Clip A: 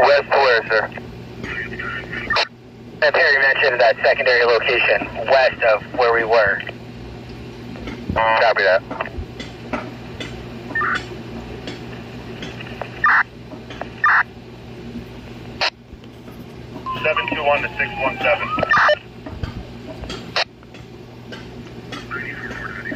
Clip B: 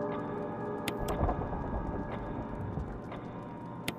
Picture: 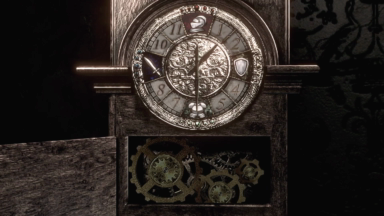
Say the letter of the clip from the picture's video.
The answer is B